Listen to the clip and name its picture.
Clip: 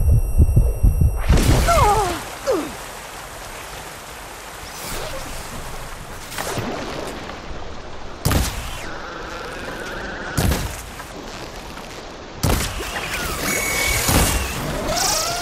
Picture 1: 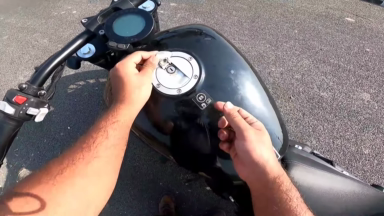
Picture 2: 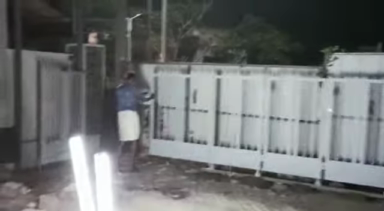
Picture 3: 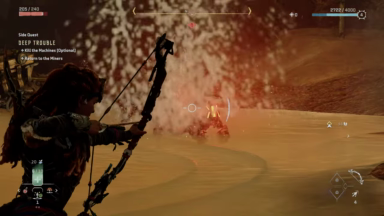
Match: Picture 3